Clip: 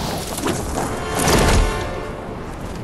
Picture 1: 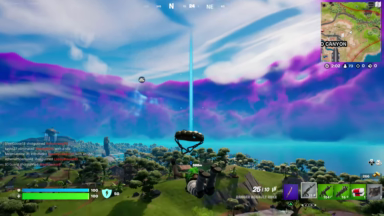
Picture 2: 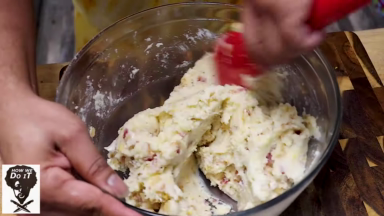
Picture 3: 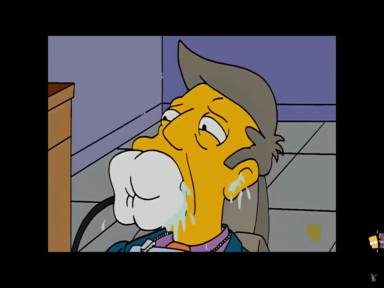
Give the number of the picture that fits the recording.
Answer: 1